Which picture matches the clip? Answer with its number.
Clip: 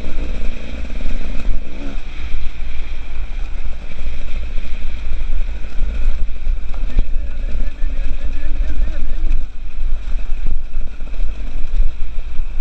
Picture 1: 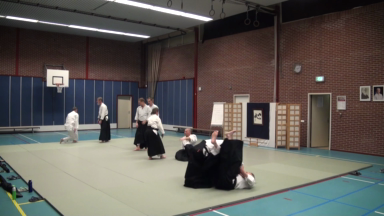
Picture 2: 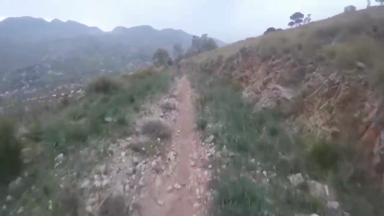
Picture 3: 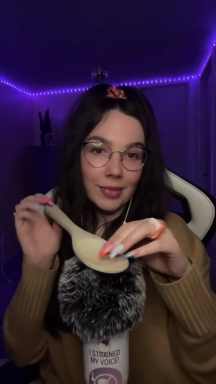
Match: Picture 2